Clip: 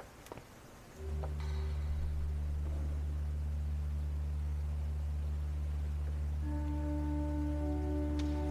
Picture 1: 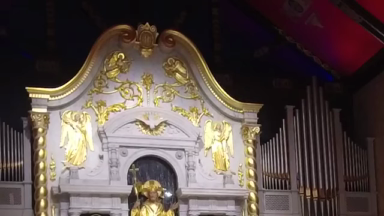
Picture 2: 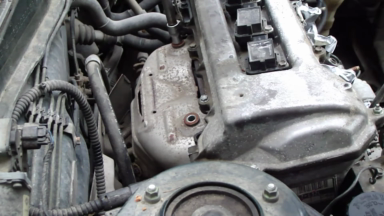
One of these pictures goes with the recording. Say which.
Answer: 1